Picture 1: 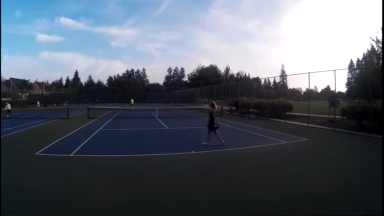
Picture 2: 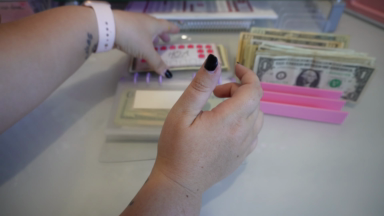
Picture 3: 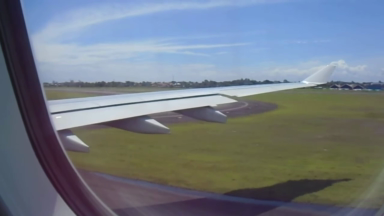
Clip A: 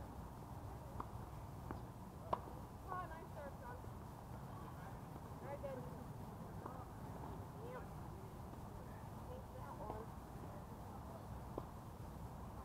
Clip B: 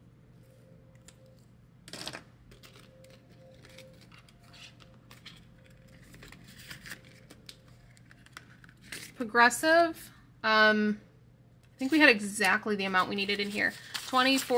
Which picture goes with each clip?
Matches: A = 1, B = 2